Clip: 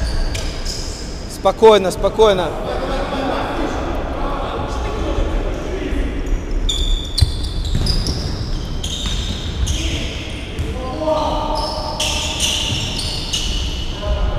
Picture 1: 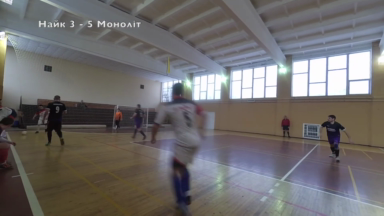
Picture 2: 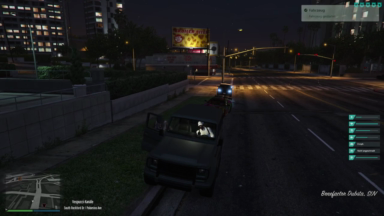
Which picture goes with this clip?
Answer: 1